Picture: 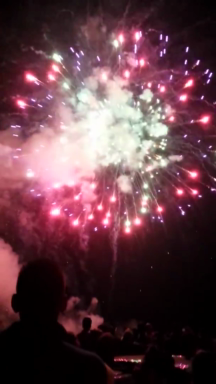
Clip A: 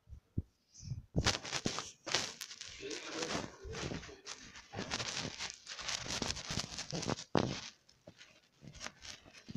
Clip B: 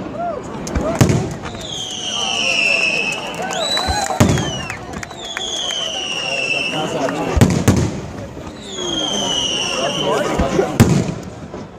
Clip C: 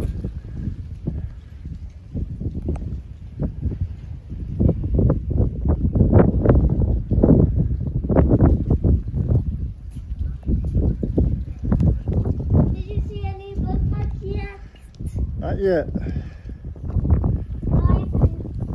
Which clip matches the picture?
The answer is B